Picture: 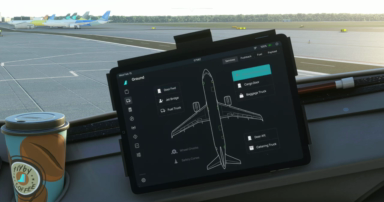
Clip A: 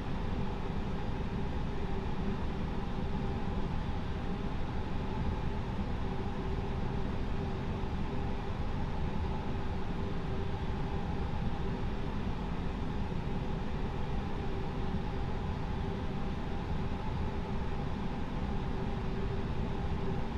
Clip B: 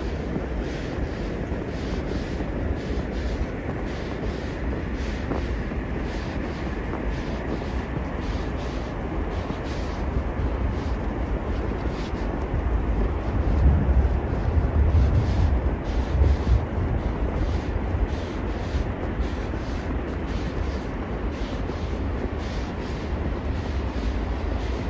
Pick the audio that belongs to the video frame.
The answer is A